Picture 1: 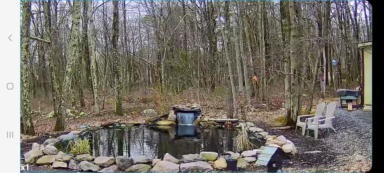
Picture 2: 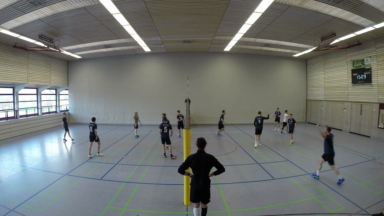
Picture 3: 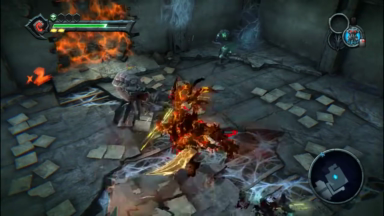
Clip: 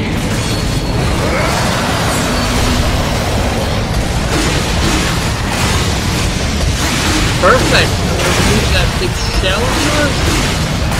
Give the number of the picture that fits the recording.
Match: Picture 3